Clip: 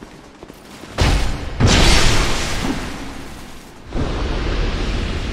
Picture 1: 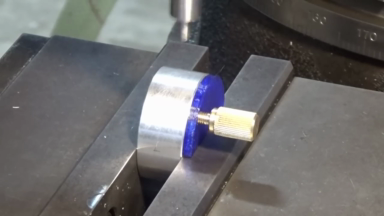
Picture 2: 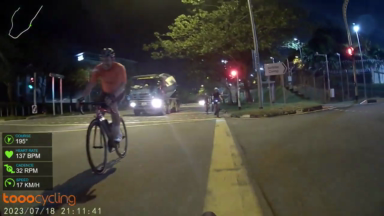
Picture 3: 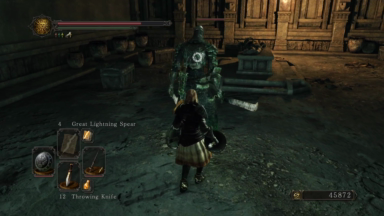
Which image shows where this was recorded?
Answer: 3